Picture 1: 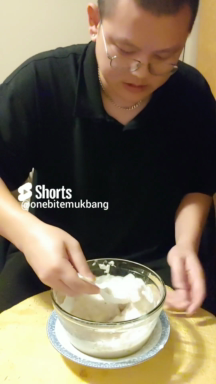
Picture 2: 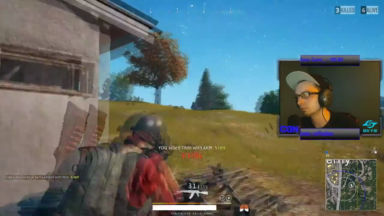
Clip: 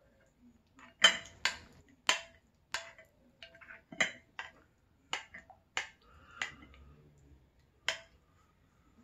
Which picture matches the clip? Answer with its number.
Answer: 1